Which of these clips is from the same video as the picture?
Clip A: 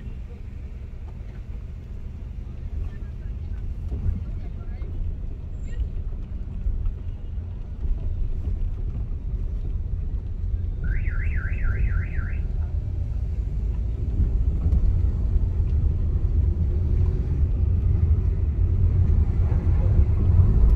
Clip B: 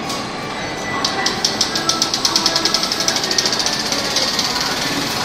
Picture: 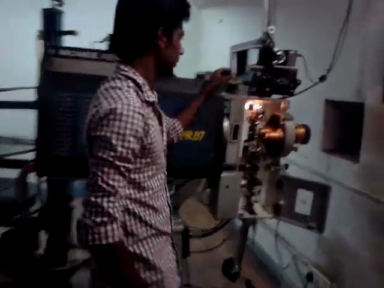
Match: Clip B